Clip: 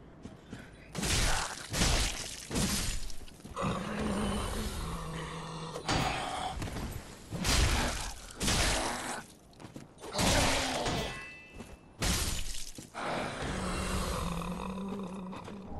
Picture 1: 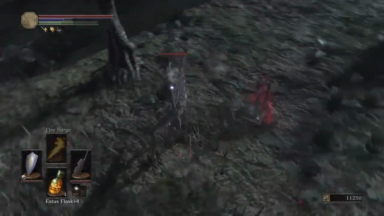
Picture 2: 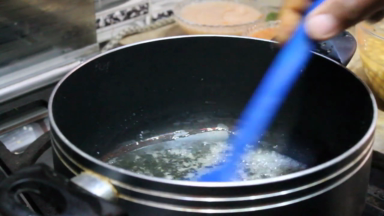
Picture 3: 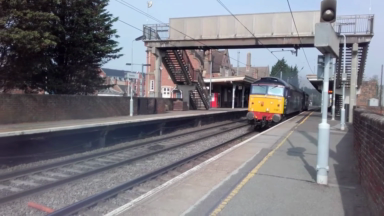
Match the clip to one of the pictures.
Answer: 1